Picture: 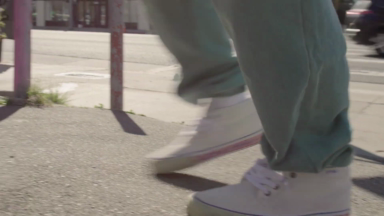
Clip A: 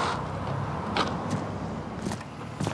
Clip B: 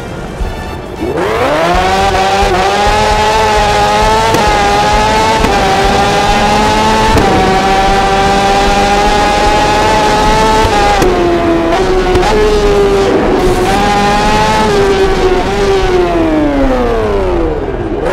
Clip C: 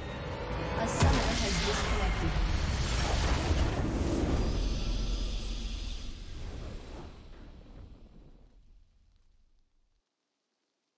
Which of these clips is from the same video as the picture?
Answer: A